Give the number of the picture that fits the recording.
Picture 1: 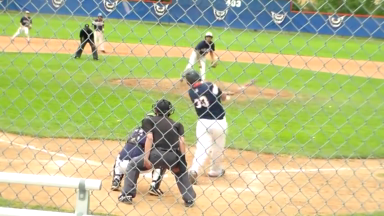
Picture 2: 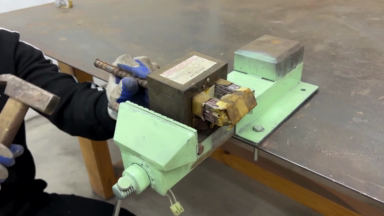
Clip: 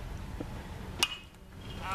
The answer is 1